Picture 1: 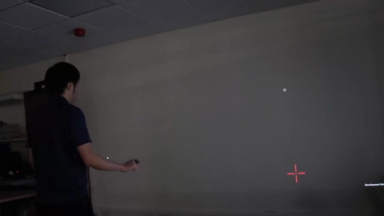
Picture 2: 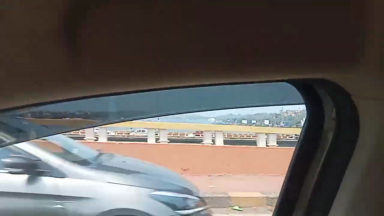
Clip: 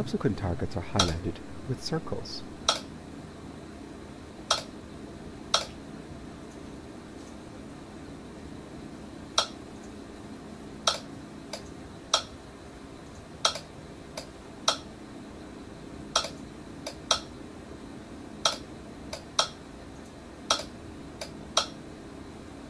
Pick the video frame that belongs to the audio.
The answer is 1